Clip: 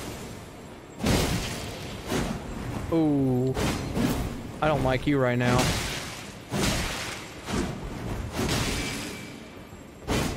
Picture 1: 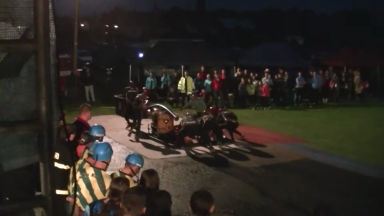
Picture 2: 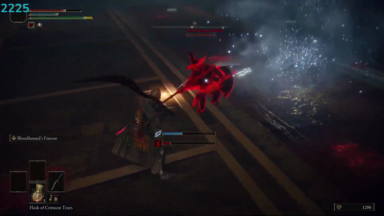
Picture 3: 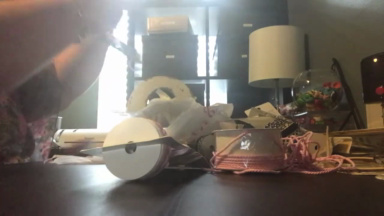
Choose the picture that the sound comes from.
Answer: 2